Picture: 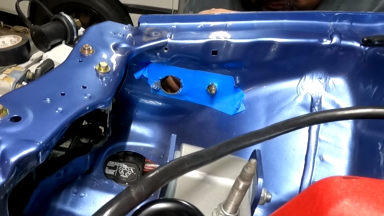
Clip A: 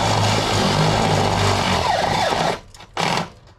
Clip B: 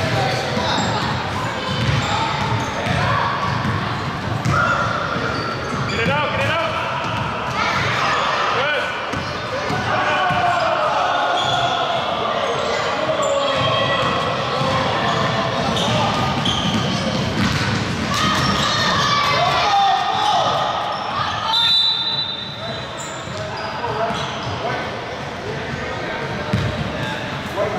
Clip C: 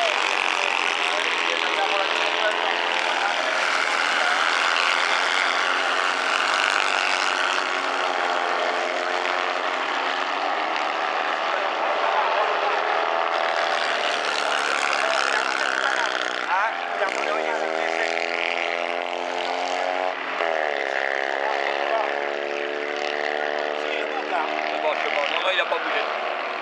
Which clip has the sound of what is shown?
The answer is A